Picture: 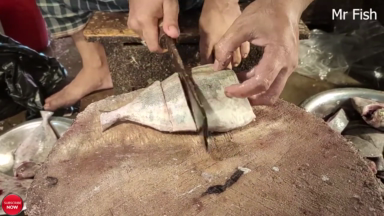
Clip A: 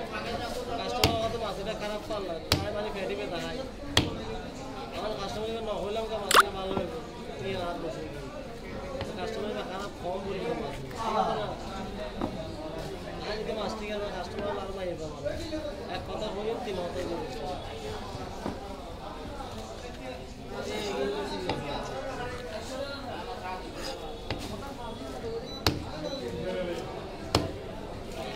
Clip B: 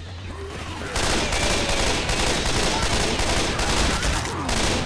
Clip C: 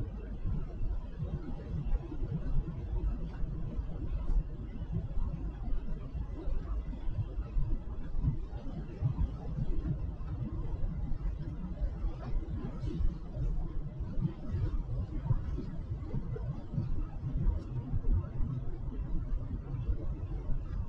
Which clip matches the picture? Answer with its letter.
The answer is A